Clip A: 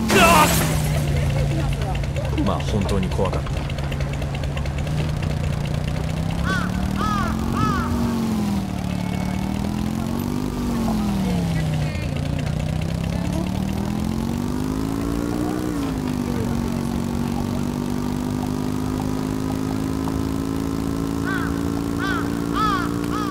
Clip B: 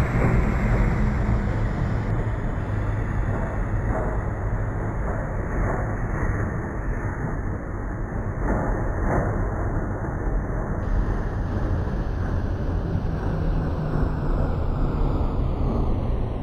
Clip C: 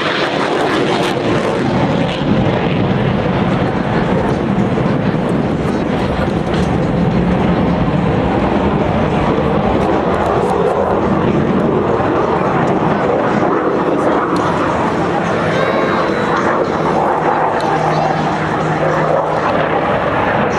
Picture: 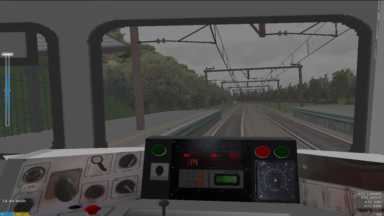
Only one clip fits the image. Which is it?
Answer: B